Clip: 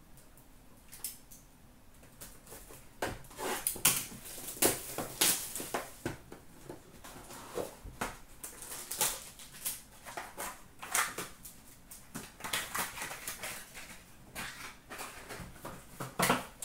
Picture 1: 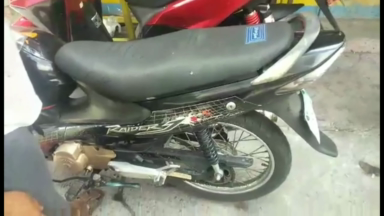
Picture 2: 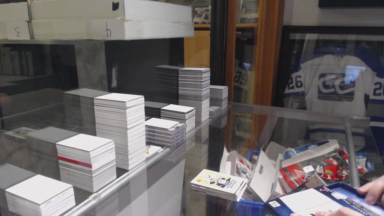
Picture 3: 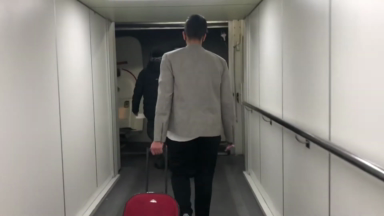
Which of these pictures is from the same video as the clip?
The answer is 2